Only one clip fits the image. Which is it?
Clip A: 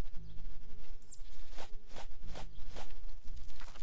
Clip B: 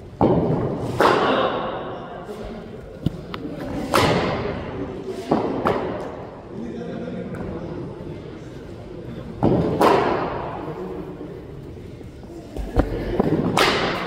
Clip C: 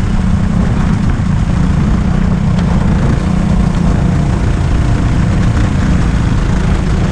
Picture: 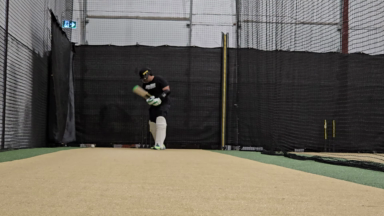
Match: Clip B